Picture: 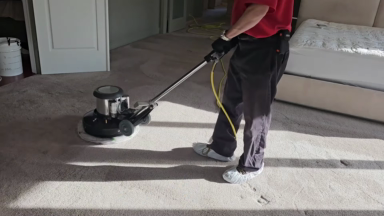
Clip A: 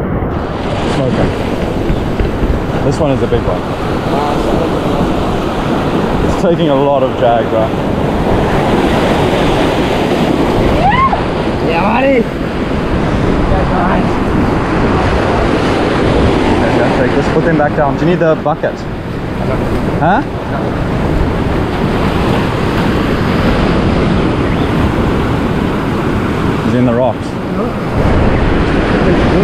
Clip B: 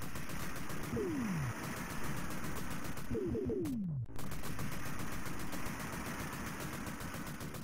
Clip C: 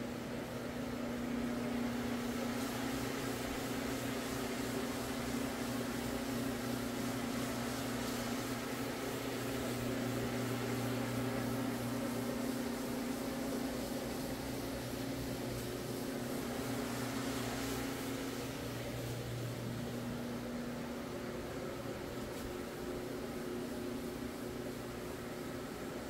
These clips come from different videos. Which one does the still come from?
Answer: C